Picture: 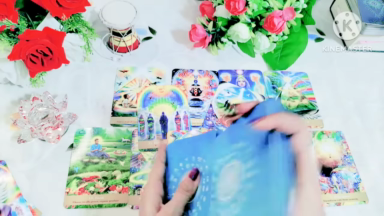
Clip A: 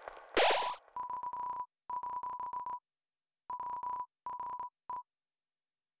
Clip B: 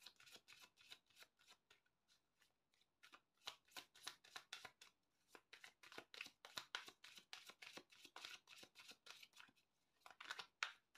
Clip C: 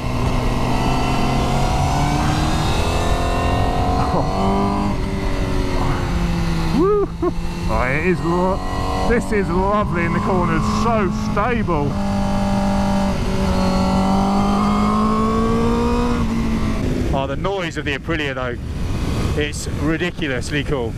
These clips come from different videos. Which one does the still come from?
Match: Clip B